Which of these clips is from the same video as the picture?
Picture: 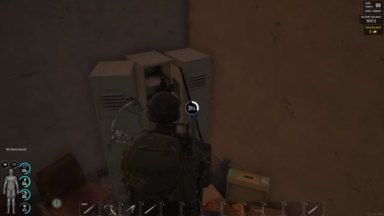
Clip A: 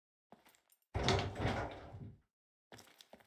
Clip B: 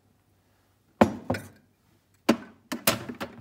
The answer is A